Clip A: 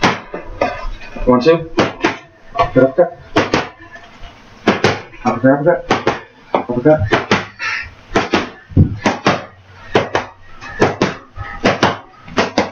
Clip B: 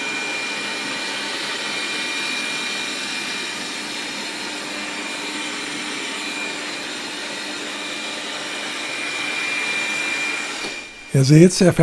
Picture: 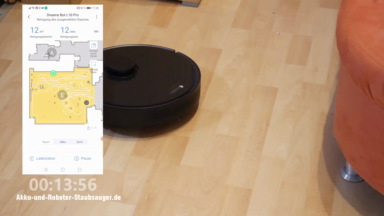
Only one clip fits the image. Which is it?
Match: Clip B